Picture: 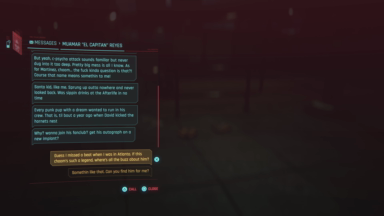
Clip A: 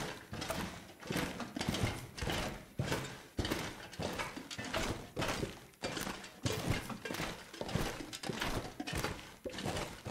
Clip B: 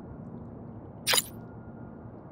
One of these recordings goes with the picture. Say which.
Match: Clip B